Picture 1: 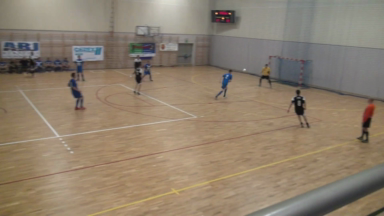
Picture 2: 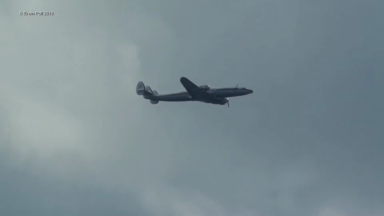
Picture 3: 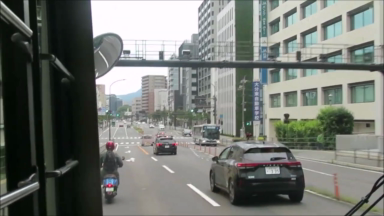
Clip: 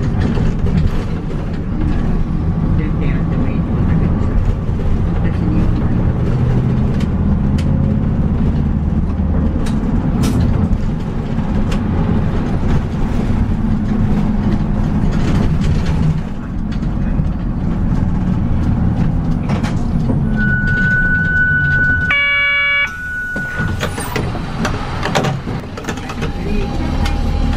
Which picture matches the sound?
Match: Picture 3